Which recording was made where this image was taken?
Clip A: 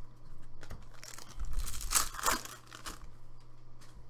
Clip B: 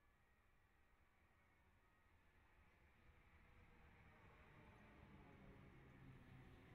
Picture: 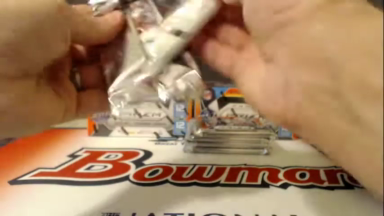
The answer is A